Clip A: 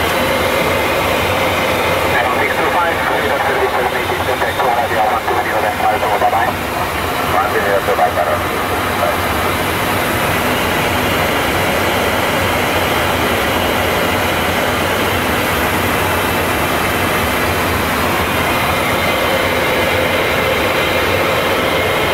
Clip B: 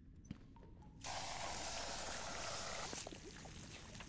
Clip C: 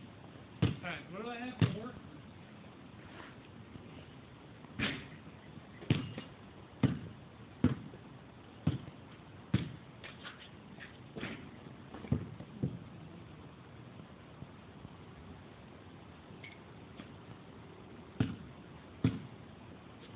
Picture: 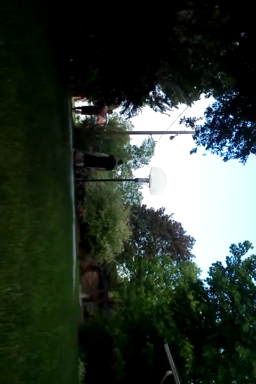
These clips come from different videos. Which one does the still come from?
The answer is C